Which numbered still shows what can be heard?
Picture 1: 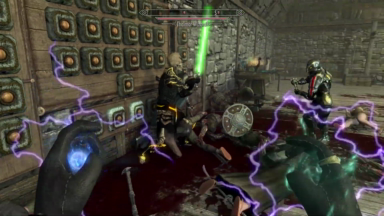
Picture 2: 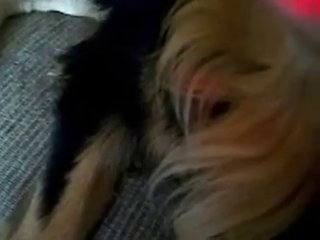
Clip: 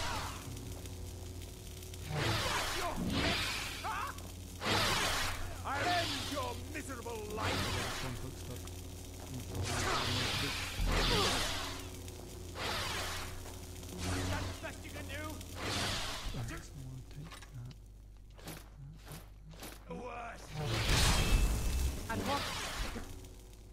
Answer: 1